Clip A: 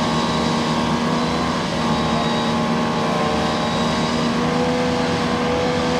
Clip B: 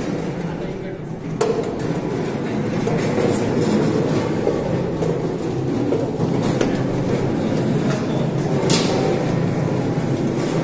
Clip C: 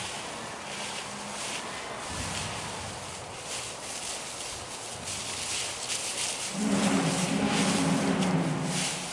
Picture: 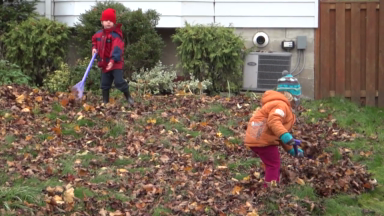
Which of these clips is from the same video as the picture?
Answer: C